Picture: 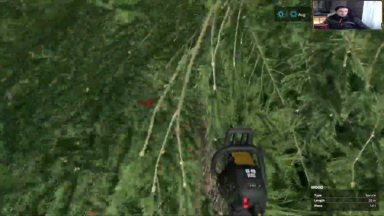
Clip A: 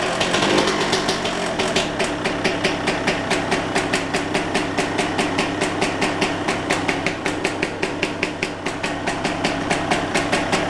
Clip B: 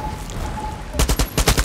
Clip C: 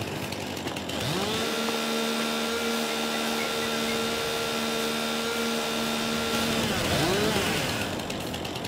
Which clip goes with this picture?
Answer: C